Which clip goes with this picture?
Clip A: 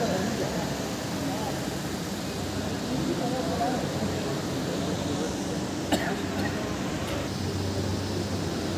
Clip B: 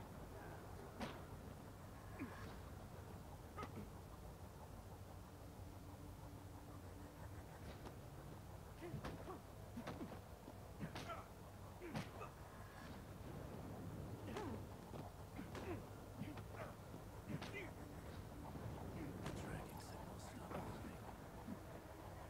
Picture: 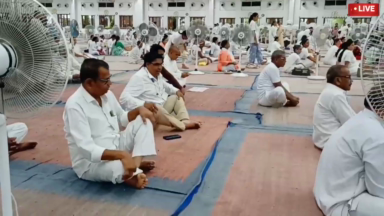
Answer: A